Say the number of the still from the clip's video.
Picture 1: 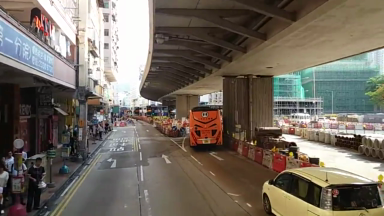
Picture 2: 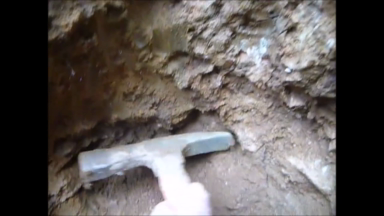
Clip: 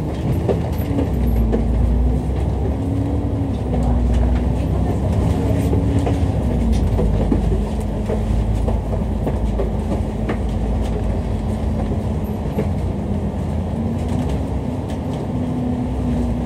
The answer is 1